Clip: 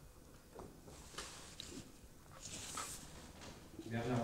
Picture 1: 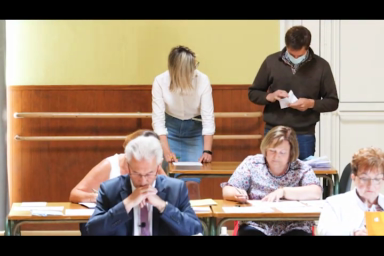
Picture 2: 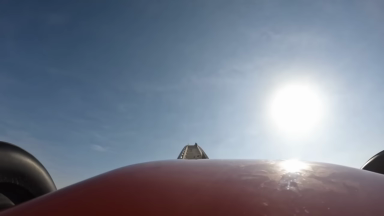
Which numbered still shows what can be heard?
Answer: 1